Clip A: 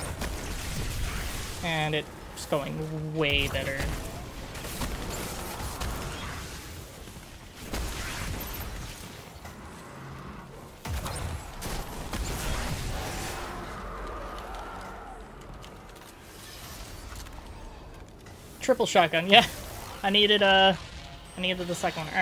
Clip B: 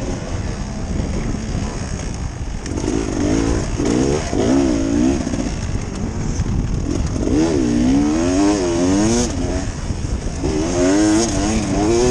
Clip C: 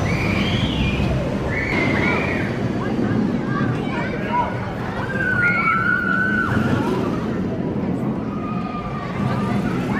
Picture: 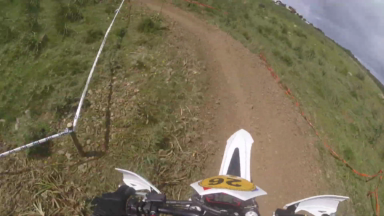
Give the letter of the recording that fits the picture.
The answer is B